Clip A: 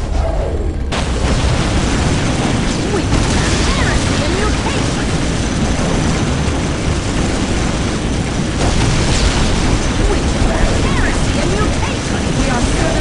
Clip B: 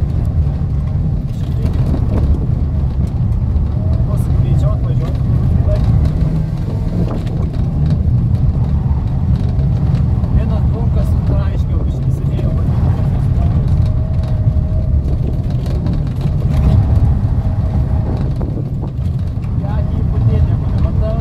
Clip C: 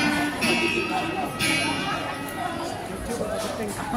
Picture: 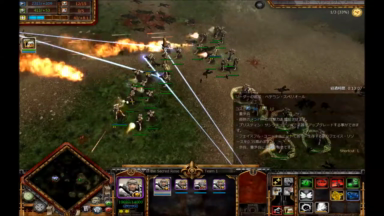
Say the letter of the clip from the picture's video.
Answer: A